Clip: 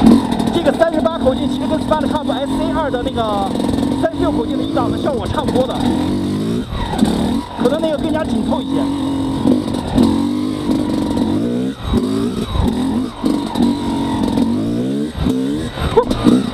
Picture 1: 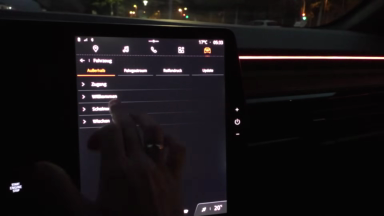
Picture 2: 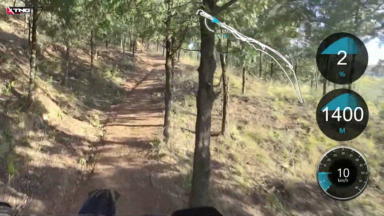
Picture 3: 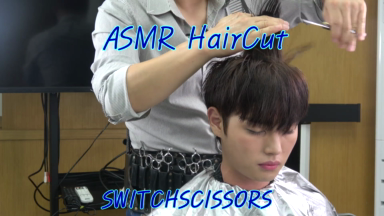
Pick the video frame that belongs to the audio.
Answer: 2